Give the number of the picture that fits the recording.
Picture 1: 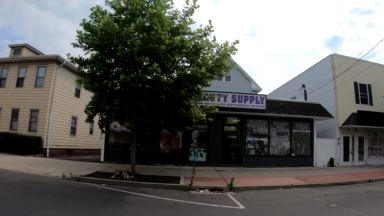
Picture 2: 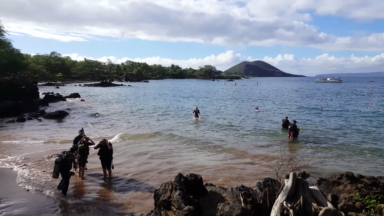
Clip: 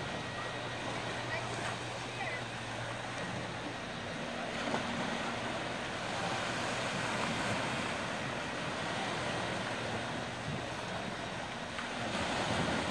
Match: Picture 2